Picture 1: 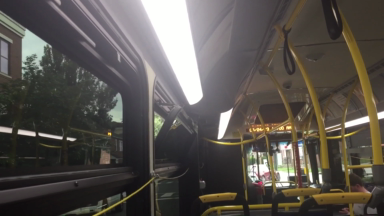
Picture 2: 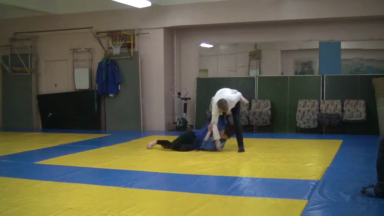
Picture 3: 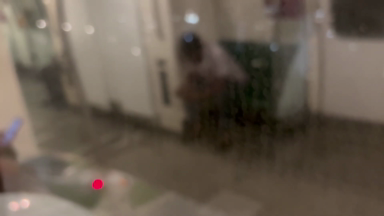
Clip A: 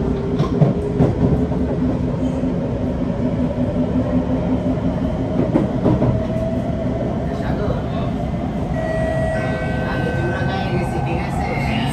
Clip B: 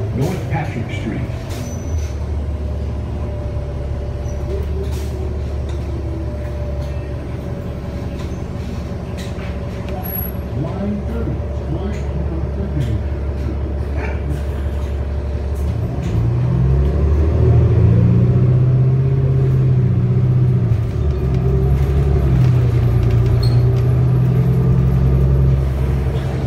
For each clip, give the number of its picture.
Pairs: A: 3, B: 1